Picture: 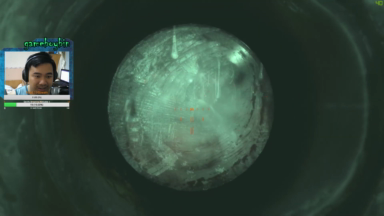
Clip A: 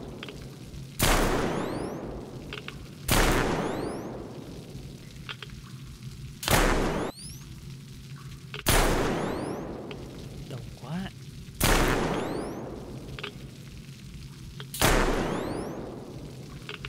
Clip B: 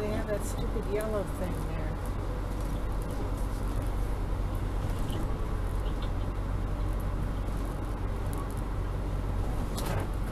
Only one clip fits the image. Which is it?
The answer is A